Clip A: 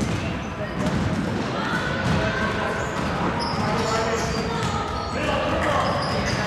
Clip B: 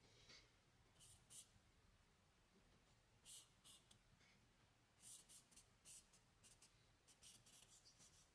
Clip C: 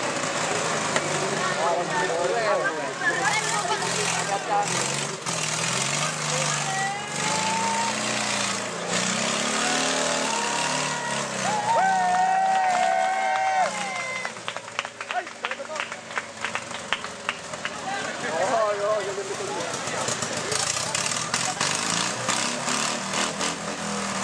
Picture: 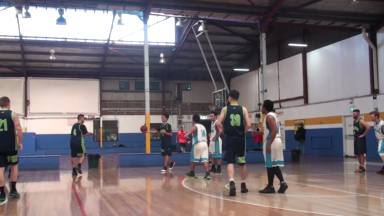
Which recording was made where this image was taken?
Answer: A